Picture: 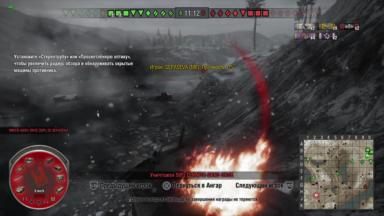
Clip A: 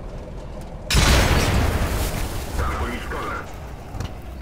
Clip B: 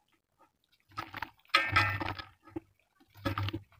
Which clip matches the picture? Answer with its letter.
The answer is A